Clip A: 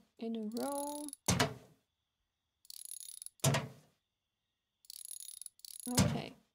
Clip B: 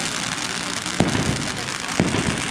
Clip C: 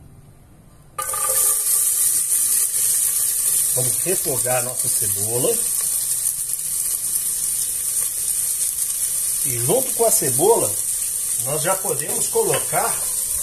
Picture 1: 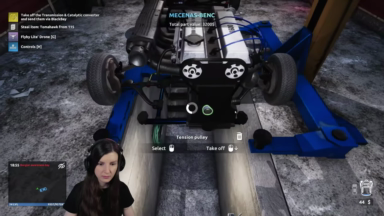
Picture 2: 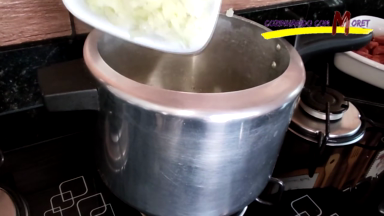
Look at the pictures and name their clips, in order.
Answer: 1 A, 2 C